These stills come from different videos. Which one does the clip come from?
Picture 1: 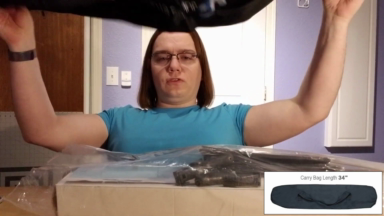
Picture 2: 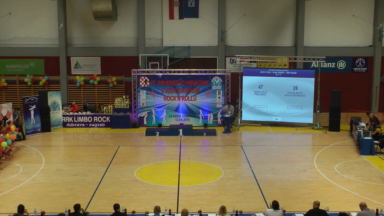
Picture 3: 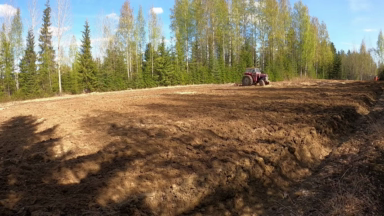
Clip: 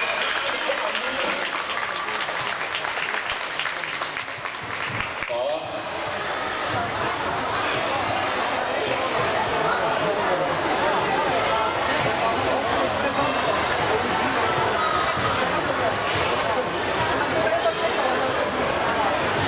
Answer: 2